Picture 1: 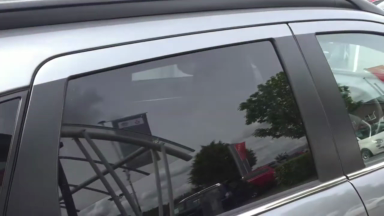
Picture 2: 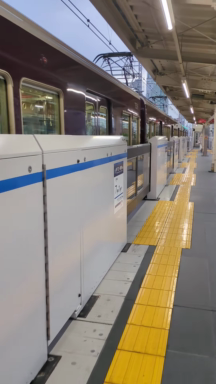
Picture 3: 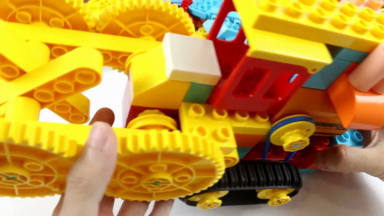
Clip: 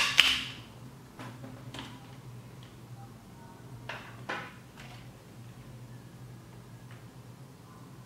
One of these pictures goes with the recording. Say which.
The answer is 3